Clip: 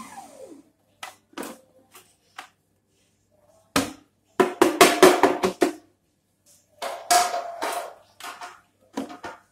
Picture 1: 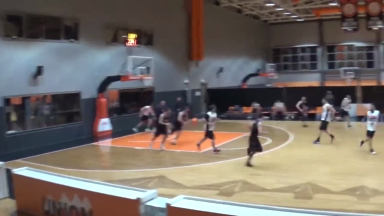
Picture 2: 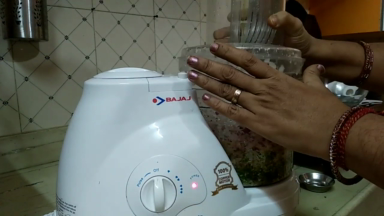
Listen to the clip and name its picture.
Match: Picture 2